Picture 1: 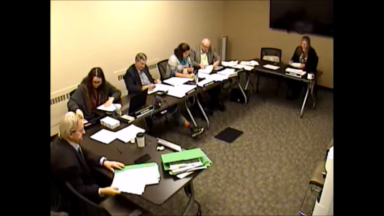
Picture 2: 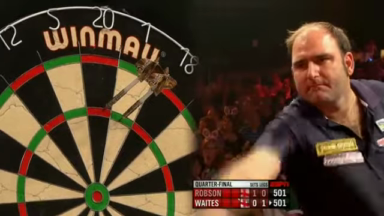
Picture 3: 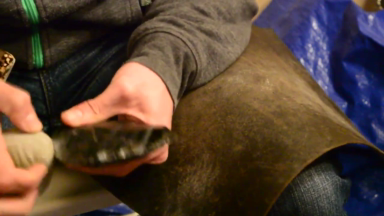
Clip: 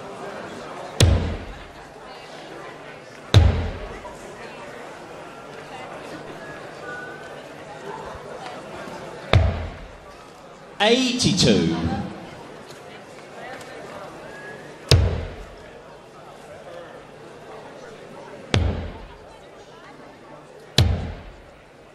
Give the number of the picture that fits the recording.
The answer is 2